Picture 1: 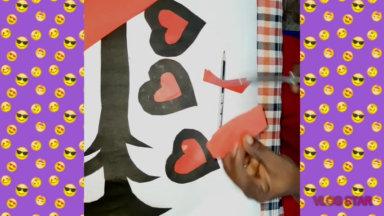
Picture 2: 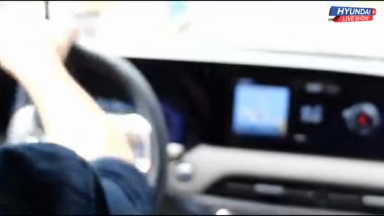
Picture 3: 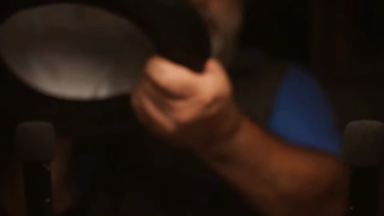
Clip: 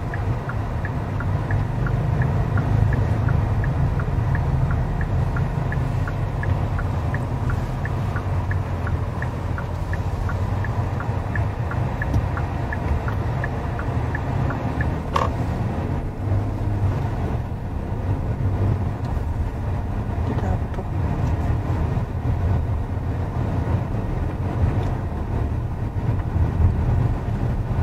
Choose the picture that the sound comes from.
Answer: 2